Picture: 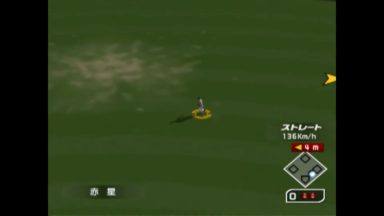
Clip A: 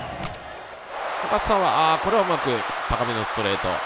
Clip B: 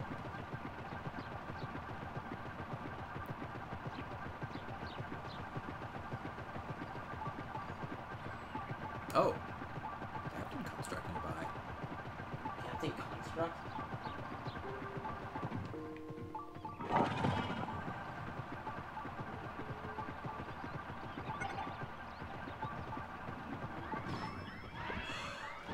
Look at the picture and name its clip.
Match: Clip A